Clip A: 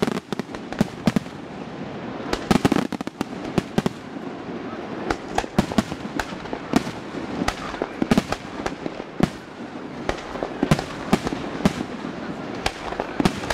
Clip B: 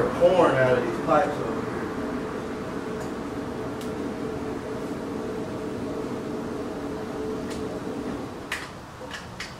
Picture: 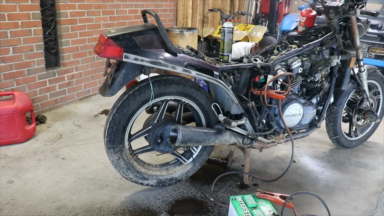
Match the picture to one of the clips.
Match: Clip B